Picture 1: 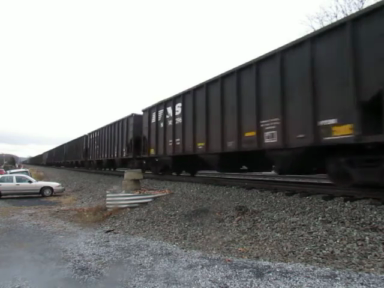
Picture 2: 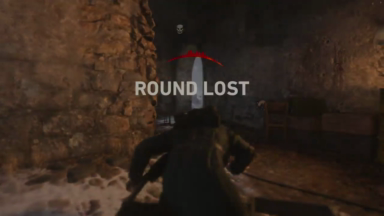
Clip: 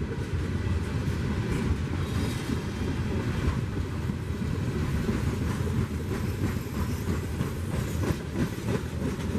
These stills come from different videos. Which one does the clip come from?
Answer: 1